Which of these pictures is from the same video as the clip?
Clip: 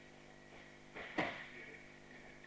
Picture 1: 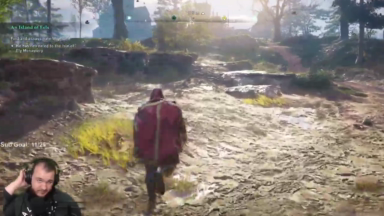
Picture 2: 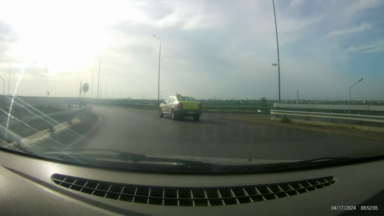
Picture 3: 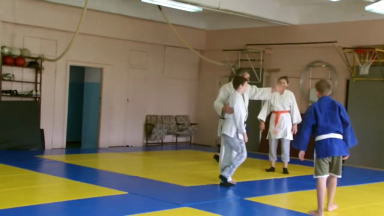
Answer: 3